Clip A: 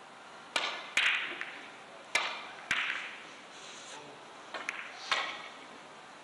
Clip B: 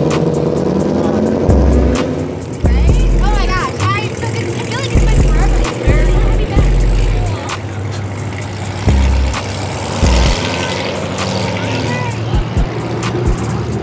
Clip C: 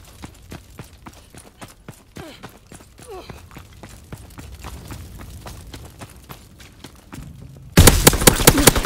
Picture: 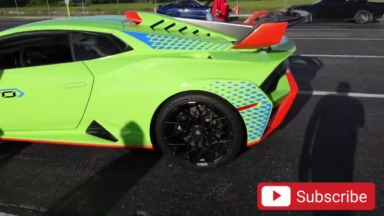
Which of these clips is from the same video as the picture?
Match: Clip B